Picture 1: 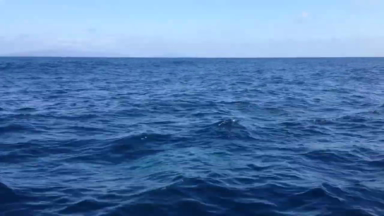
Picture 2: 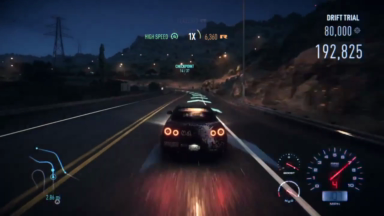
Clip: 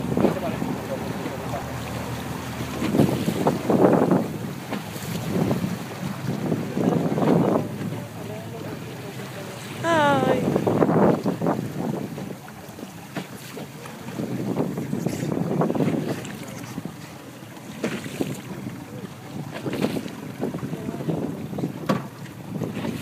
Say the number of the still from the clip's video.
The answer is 1